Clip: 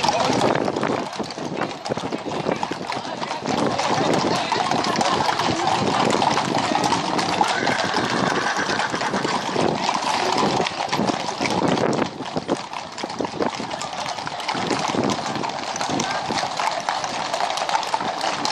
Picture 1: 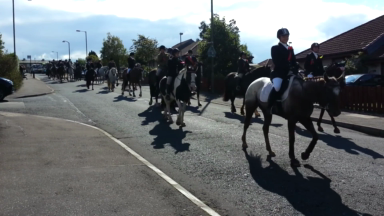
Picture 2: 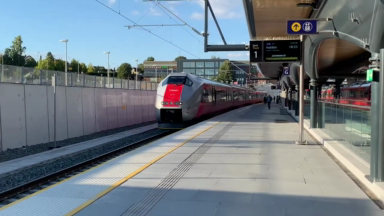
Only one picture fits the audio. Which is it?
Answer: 1